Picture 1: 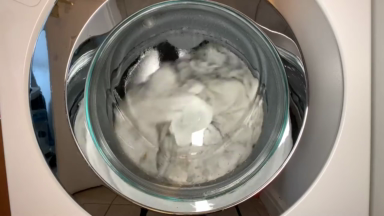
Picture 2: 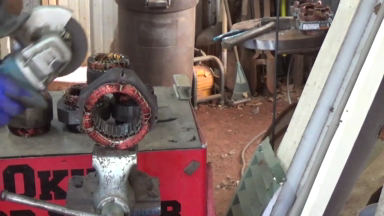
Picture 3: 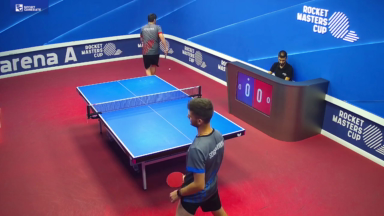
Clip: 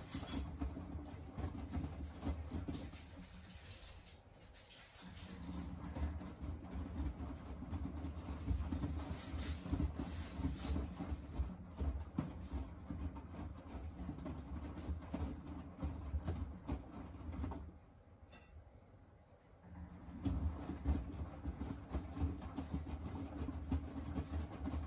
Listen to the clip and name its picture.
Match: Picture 1